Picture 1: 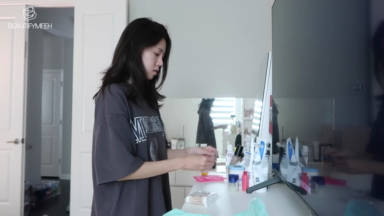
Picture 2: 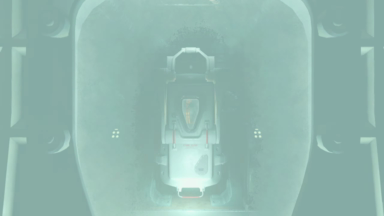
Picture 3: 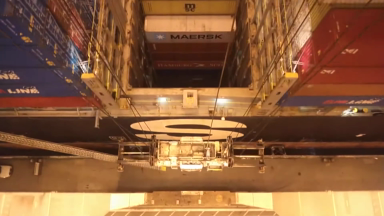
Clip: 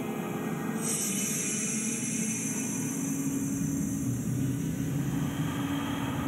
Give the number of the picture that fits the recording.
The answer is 2